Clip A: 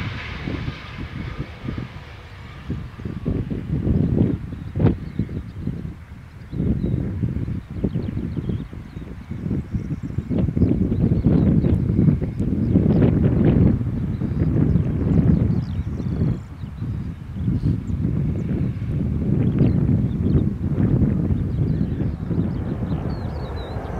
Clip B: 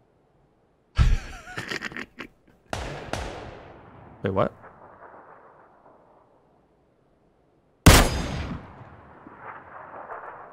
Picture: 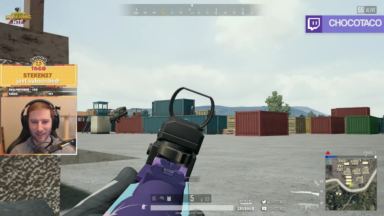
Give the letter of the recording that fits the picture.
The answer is B